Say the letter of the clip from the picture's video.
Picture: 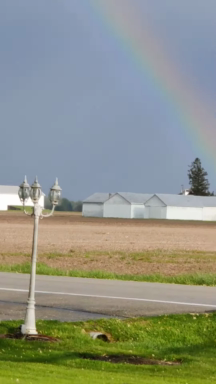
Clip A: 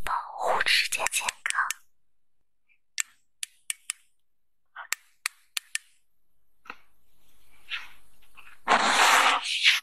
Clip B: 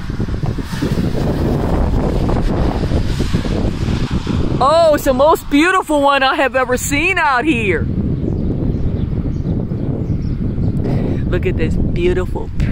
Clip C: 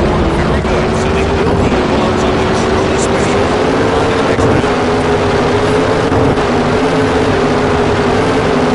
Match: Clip B